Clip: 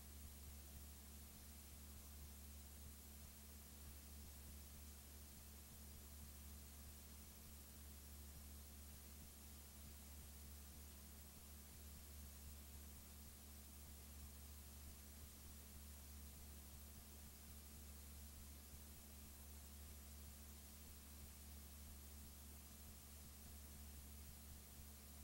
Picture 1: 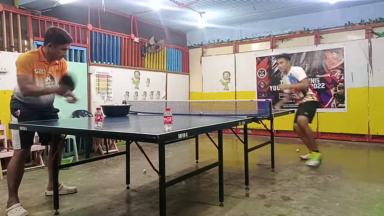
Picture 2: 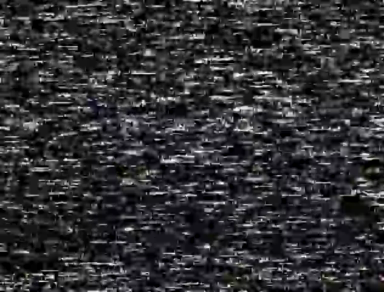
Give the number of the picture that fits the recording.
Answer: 2